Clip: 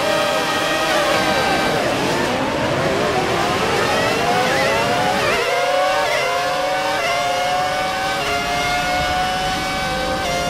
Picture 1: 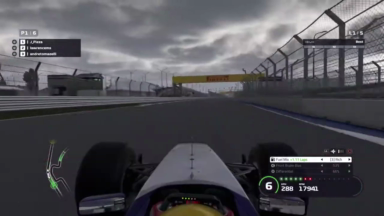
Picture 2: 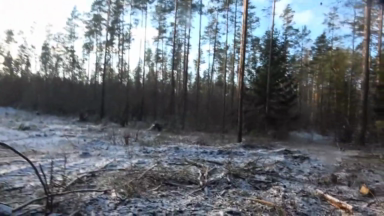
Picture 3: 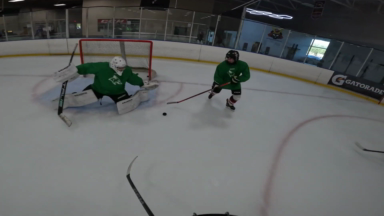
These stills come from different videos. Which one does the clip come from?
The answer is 1